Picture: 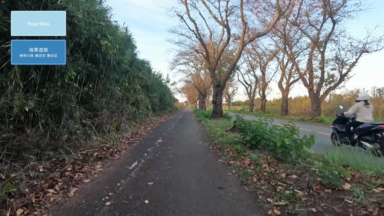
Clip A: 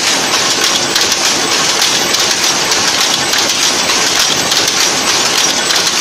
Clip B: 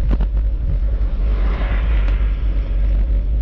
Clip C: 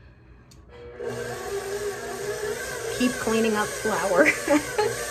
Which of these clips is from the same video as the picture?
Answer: B